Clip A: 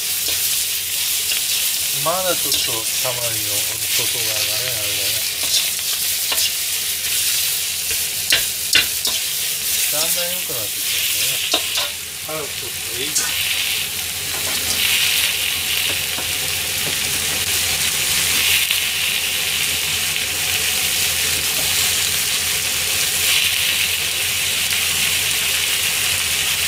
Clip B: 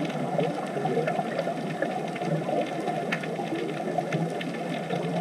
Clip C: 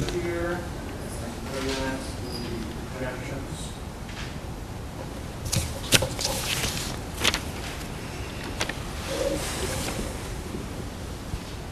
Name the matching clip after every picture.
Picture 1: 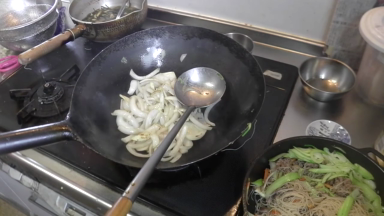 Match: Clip A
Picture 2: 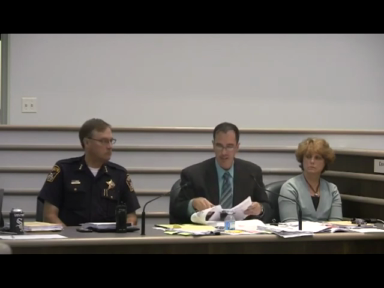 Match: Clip C